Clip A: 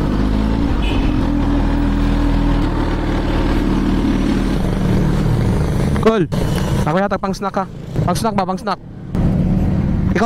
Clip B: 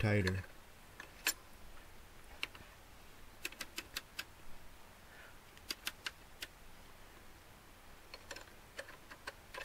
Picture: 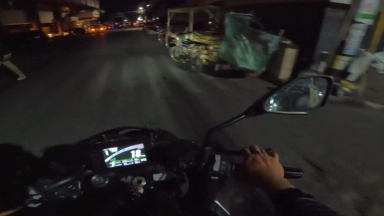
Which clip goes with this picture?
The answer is A